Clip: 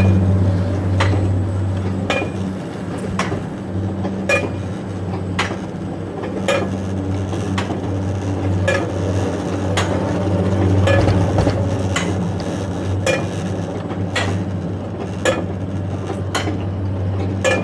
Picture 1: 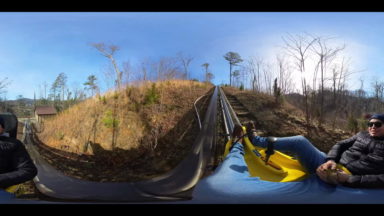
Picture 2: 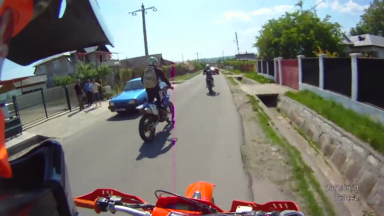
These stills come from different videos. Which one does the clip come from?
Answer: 1